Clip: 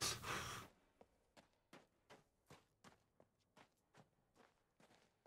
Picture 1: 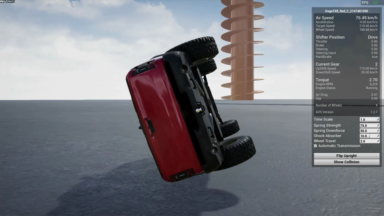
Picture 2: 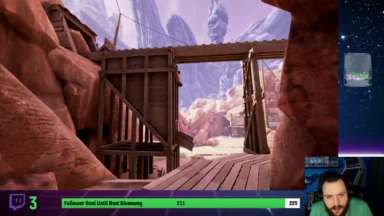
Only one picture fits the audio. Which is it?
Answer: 2